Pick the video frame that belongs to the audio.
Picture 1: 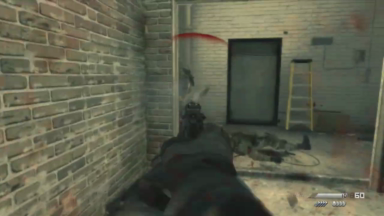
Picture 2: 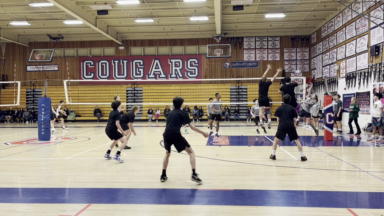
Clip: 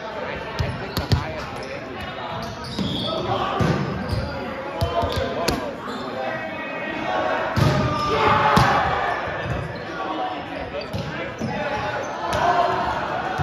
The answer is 2